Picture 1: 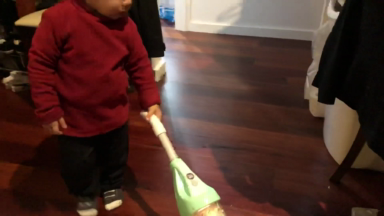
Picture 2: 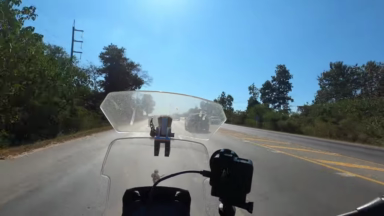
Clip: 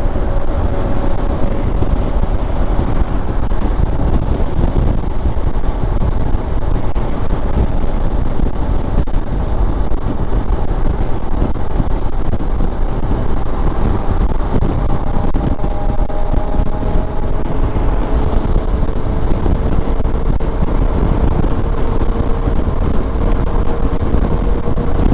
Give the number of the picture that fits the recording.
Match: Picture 2